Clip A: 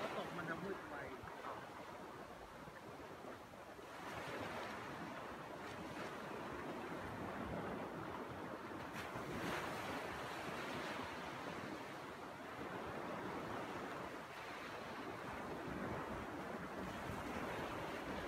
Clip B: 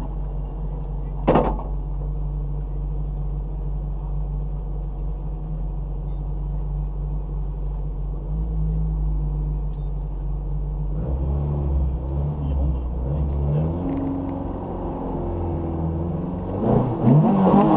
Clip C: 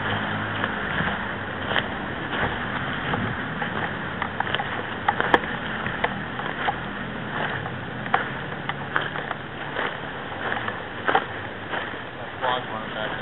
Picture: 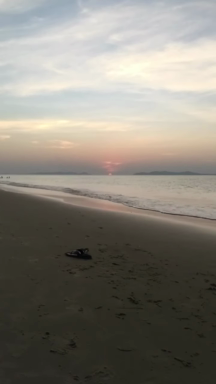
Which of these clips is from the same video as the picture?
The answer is A